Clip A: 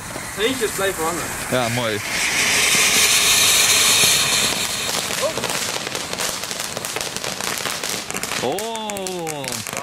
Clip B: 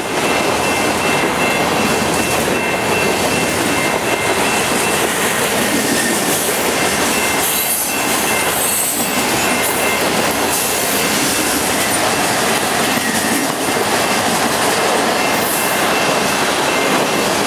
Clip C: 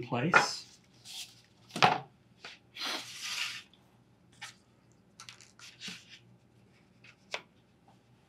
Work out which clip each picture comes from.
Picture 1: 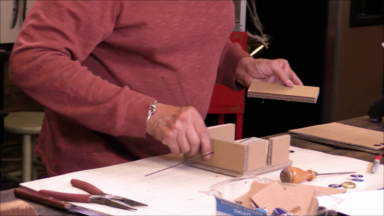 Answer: C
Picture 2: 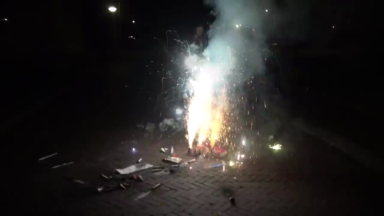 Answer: A